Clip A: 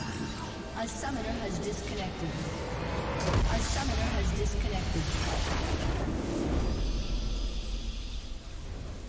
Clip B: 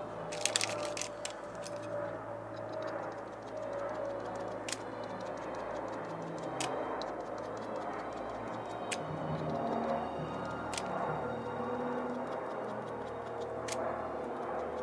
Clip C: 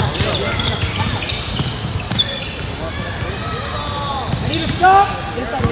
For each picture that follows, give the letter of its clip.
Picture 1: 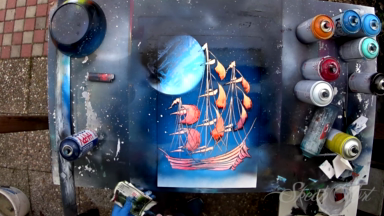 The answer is B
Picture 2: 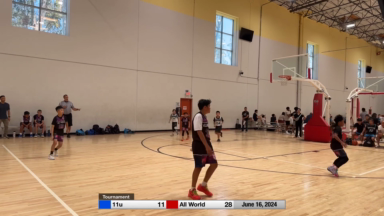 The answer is C